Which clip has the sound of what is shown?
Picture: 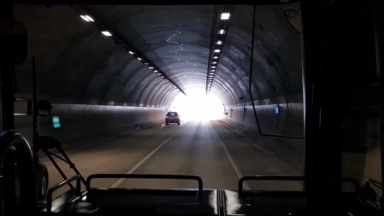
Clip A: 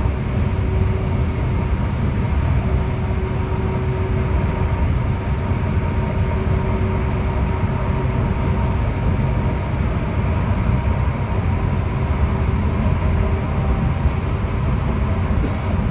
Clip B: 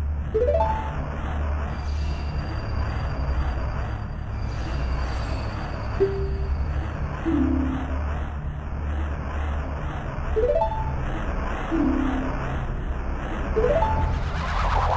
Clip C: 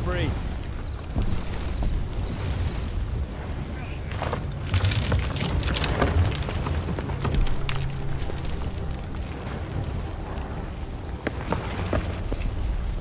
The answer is A